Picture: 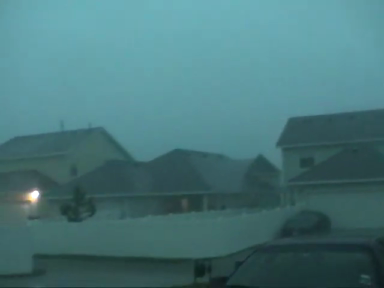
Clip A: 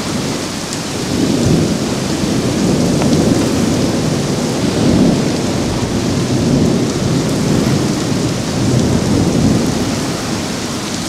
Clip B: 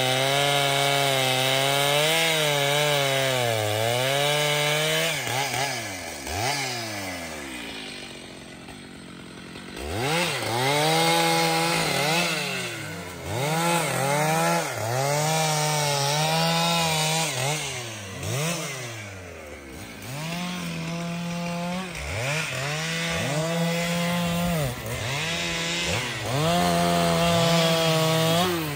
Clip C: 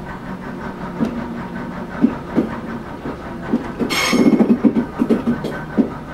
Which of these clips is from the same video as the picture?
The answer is A